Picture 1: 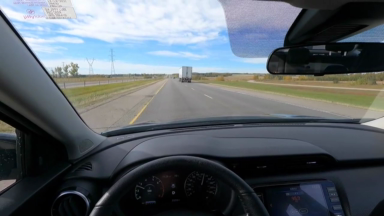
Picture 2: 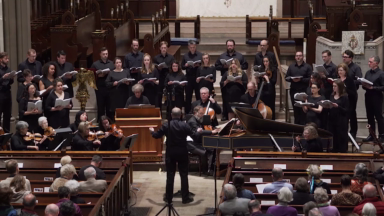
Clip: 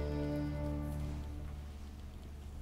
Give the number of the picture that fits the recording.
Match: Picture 2